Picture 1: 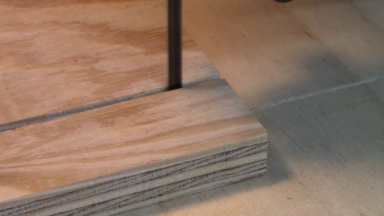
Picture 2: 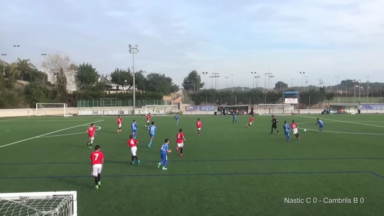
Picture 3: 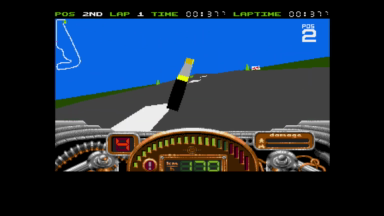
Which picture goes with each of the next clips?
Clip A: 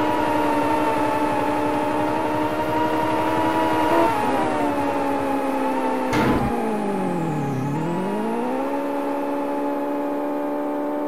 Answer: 3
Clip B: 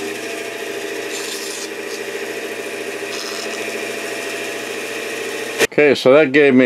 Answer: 1